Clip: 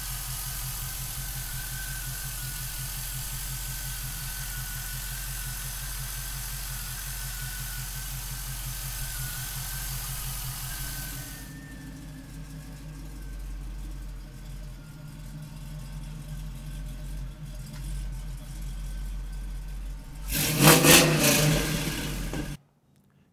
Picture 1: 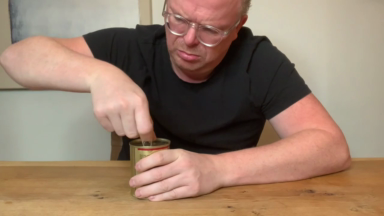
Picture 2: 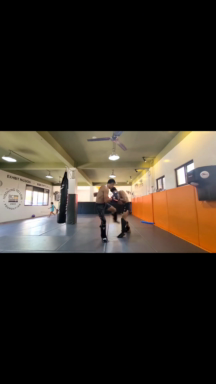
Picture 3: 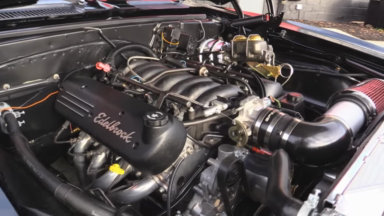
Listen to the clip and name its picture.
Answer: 3